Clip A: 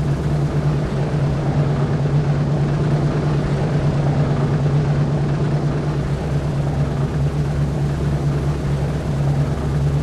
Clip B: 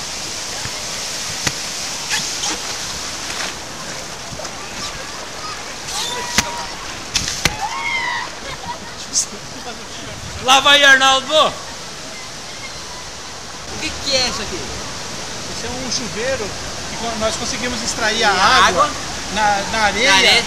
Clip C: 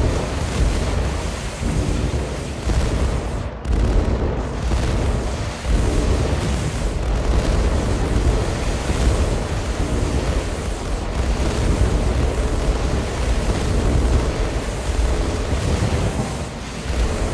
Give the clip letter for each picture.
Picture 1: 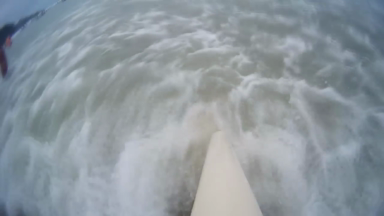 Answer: B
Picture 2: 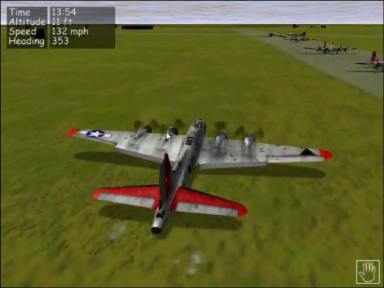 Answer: A